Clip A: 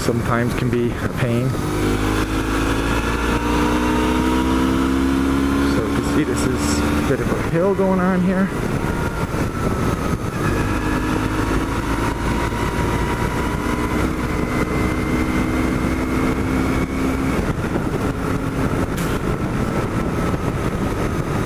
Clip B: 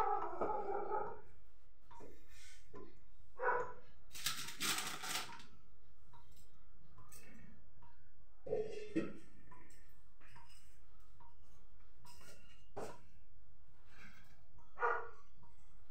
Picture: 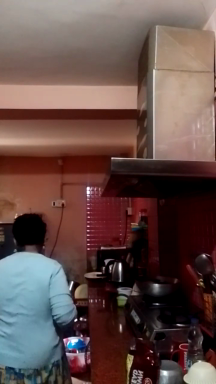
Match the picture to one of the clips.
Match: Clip B